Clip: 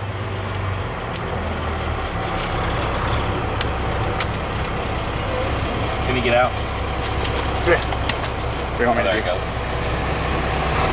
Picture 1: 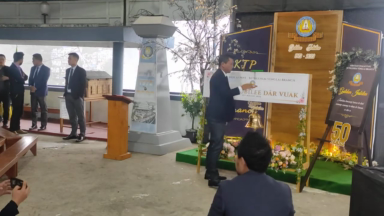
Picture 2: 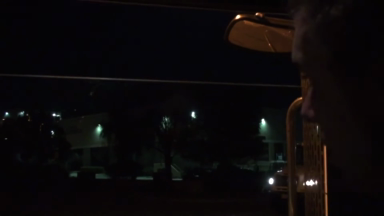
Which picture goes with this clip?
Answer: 2